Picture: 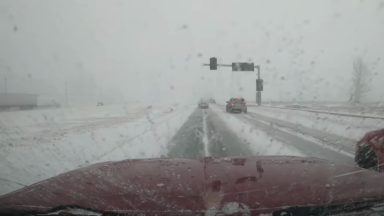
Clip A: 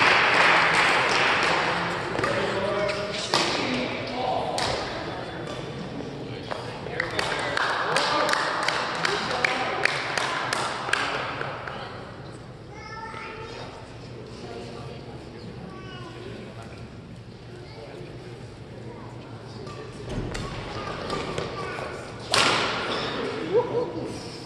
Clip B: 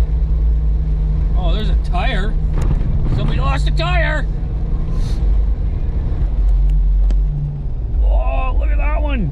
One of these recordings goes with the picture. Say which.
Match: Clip B